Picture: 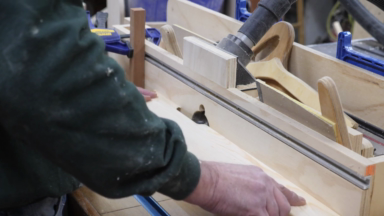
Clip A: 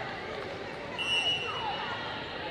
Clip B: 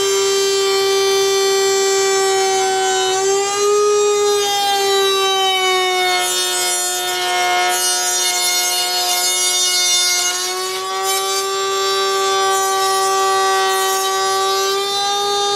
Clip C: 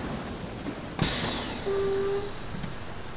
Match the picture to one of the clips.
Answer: B